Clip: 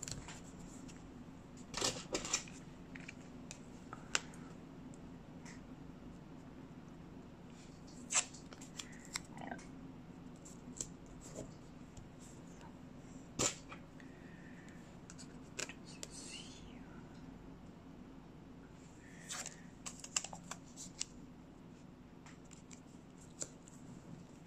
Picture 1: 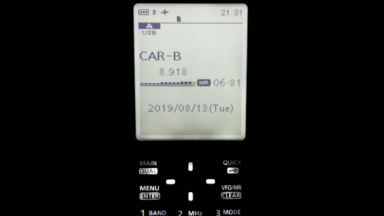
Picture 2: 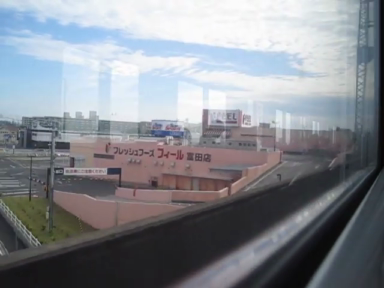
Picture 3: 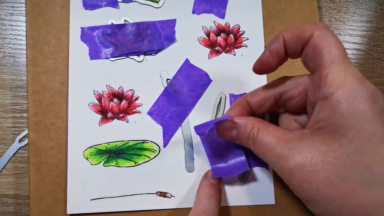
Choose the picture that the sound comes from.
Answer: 3